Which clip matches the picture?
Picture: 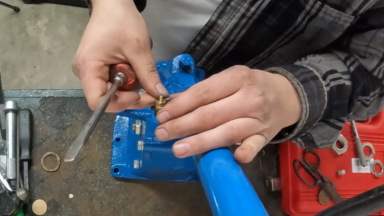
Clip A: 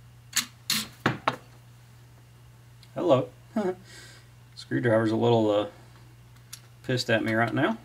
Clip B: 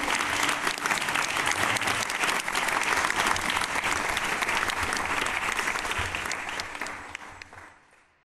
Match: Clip A